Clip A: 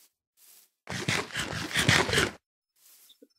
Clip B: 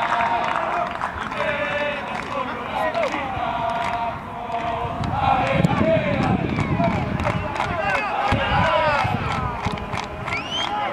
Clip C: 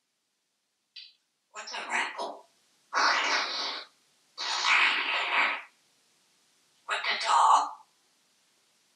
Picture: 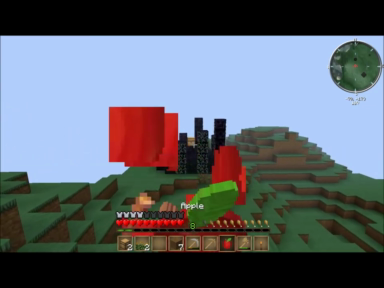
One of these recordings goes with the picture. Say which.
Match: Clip A